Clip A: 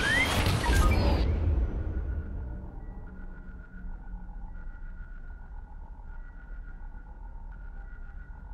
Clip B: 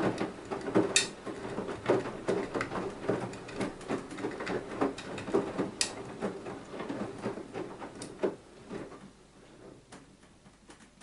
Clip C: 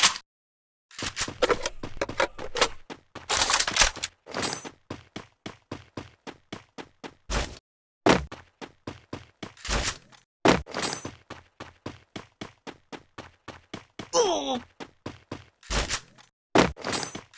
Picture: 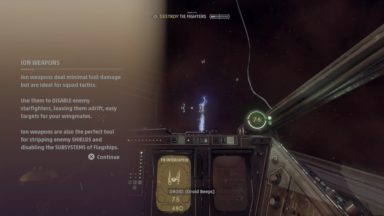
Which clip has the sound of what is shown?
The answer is A